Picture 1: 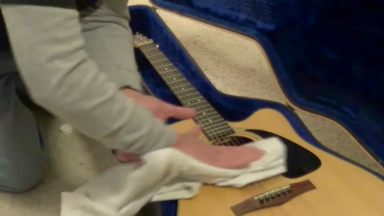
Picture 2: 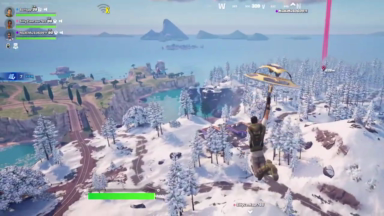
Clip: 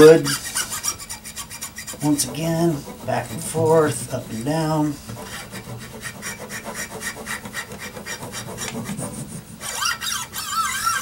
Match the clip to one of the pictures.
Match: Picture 1